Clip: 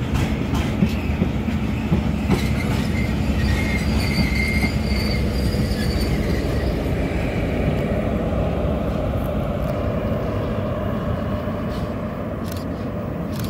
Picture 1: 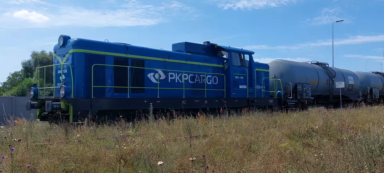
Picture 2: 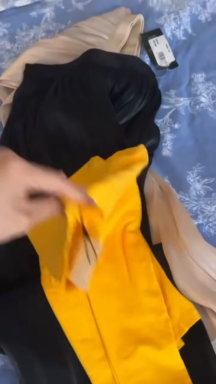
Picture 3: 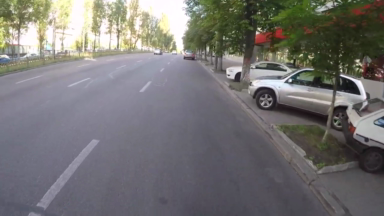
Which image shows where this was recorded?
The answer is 1